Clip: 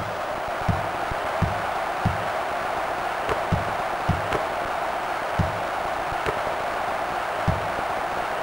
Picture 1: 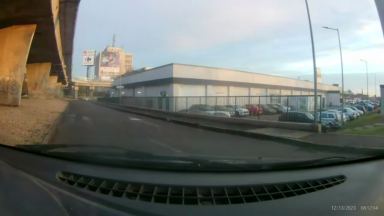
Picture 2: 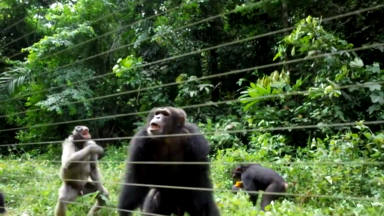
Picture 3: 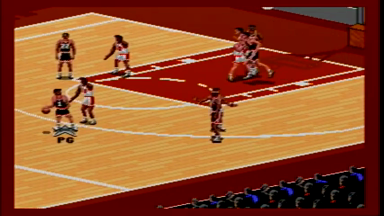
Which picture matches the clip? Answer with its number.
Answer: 3